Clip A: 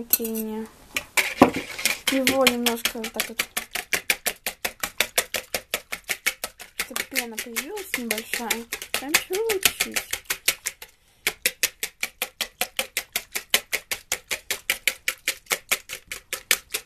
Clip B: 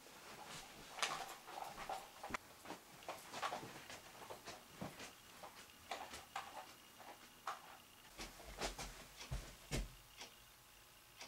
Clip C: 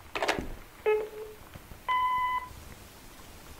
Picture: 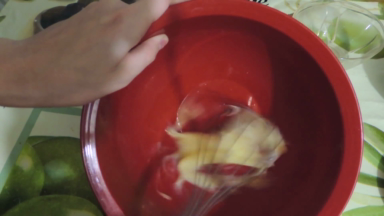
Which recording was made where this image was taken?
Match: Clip A